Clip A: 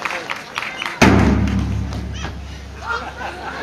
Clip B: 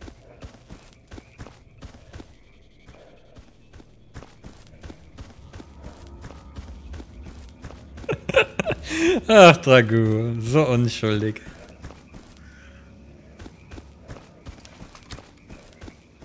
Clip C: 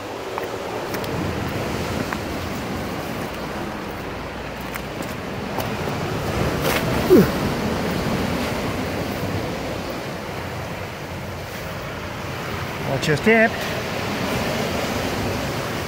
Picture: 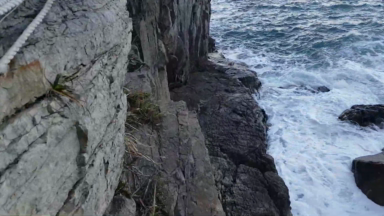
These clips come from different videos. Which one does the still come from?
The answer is C